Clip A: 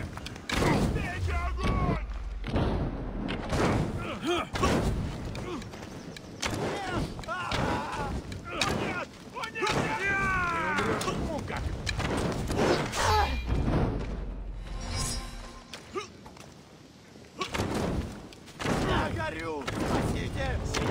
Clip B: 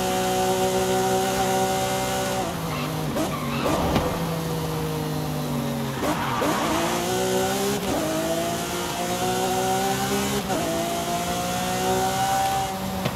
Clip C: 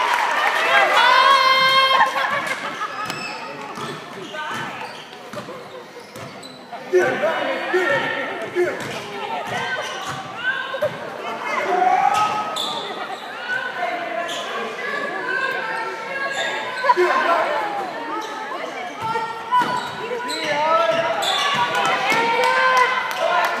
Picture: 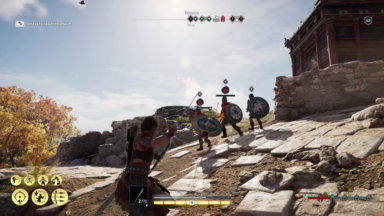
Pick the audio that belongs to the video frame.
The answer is A